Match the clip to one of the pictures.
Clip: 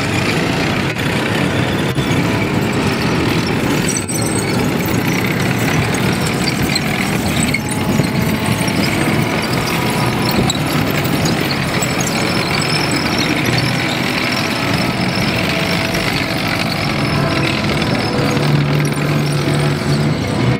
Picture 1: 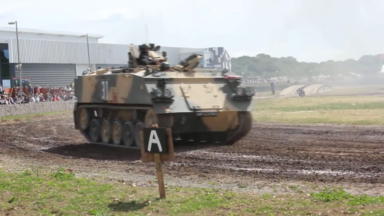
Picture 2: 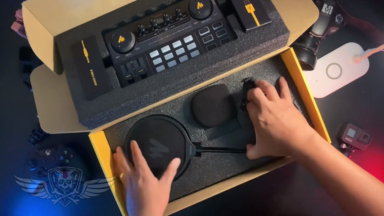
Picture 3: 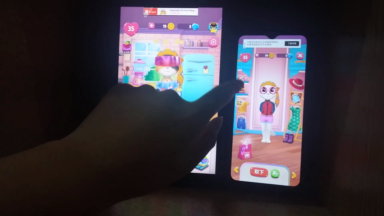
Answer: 1